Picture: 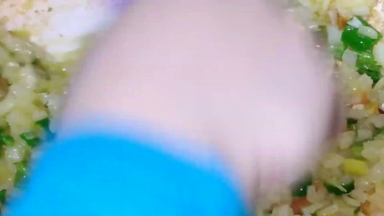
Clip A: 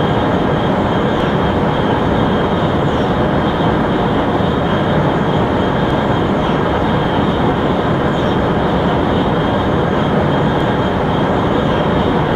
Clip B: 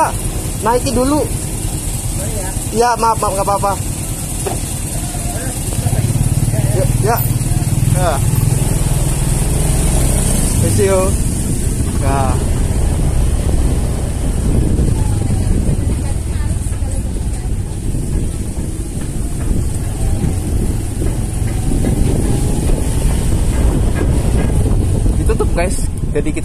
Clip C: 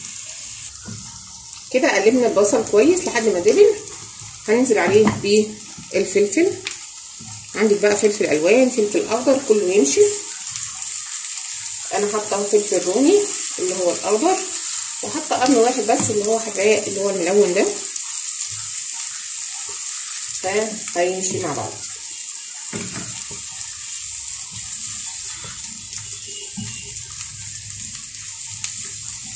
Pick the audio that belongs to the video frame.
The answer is C